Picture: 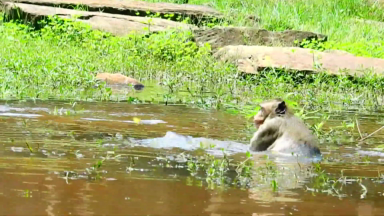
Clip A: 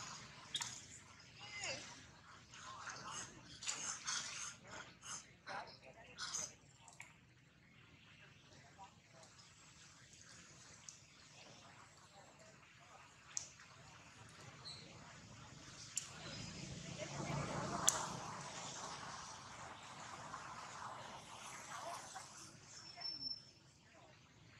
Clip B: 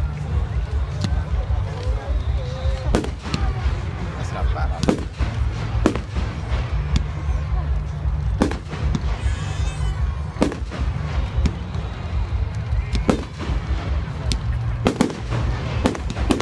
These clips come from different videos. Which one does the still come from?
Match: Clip A